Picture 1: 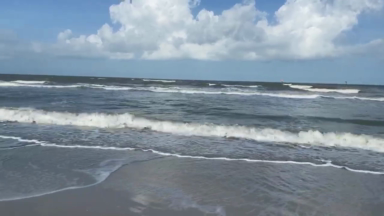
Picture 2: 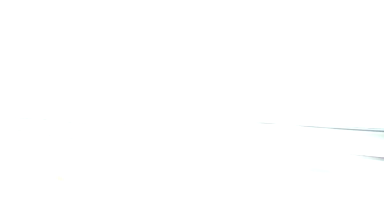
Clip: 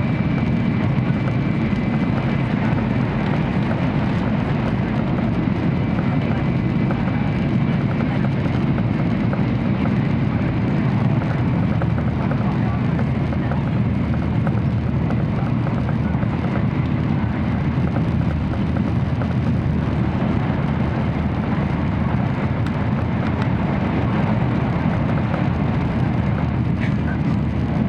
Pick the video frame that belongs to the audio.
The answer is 2